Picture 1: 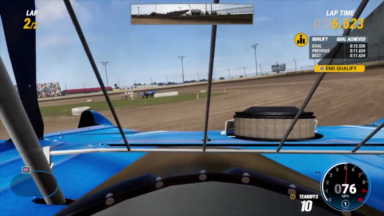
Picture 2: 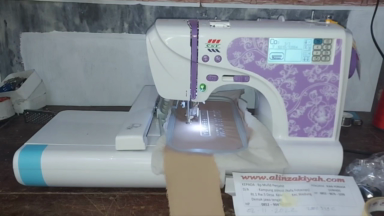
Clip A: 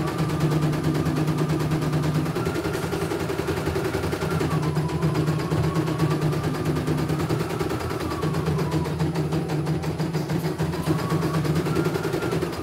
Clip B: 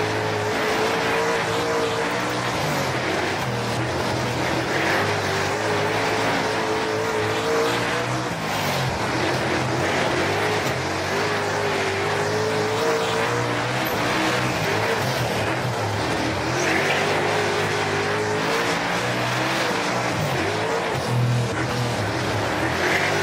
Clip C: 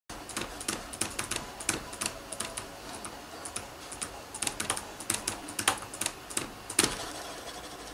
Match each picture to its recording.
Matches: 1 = B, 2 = A